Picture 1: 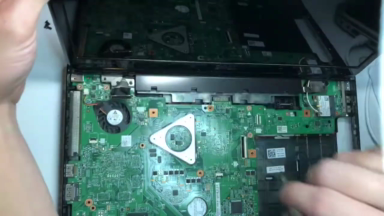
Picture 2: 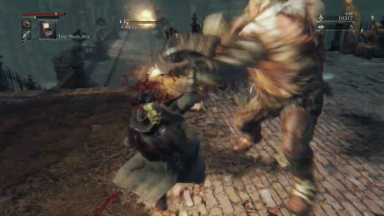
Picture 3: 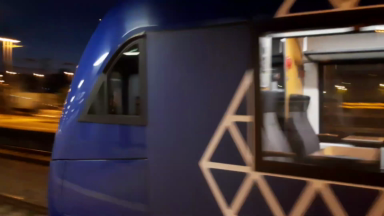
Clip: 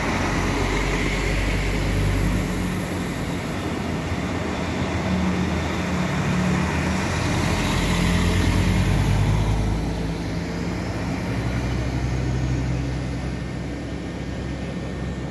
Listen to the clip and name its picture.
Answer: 3